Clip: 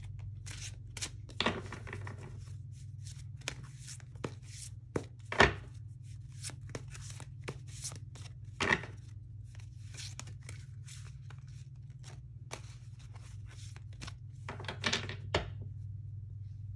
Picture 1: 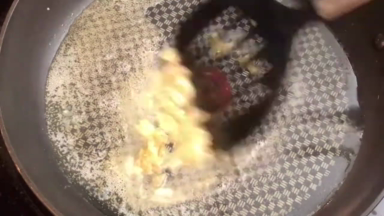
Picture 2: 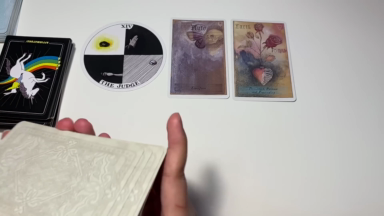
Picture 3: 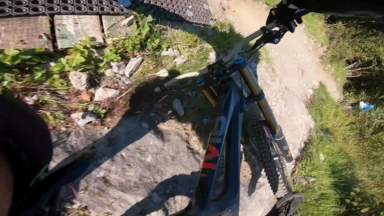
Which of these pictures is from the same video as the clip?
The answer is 2